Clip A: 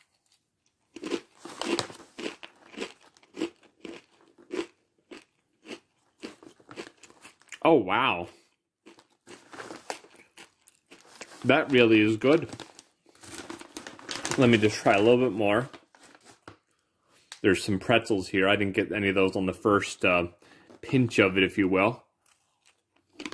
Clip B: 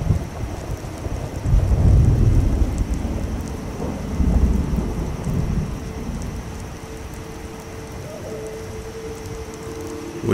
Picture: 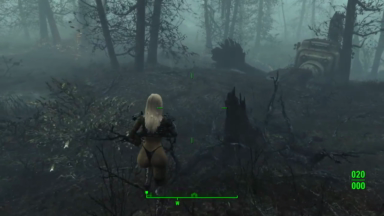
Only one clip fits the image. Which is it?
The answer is B